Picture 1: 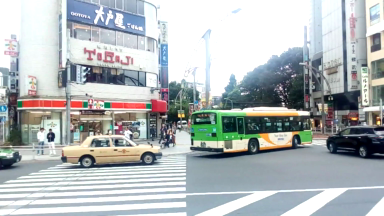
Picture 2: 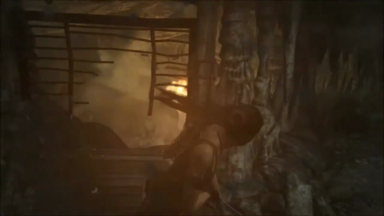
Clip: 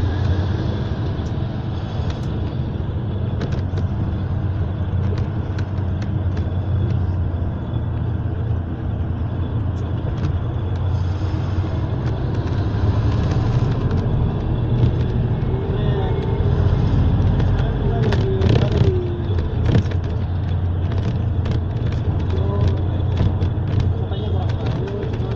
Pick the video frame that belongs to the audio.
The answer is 1